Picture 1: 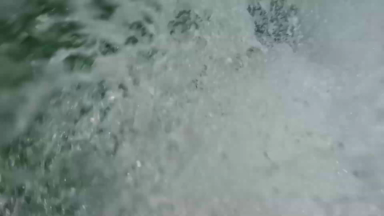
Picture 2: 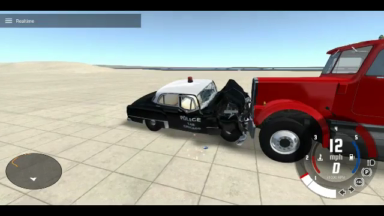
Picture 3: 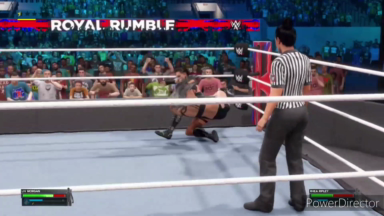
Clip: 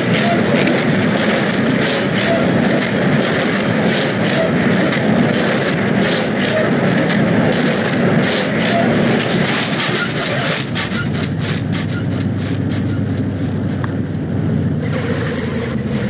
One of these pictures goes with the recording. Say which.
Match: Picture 2